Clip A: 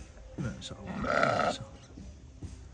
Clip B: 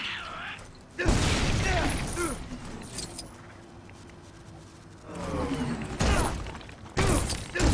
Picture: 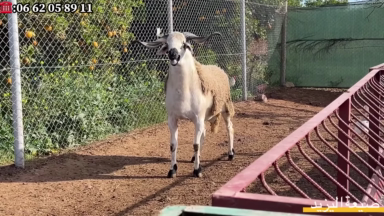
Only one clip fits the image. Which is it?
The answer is A